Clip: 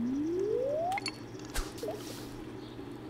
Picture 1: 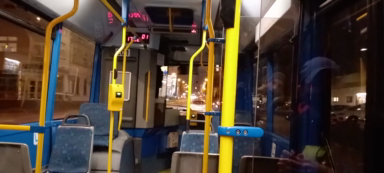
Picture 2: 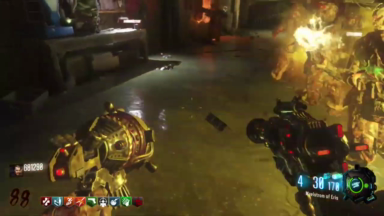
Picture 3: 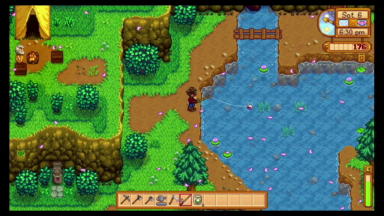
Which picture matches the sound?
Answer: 3